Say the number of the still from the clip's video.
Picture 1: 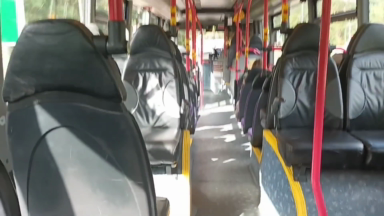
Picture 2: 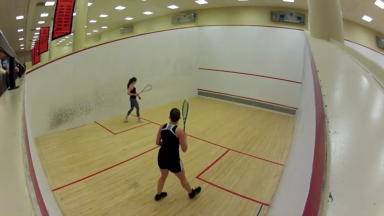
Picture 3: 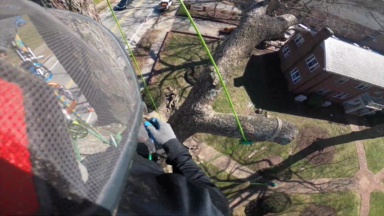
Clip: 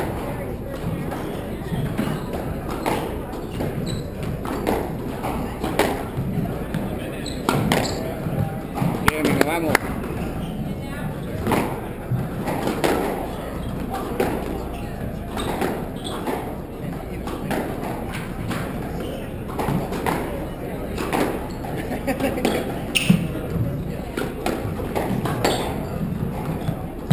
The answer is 2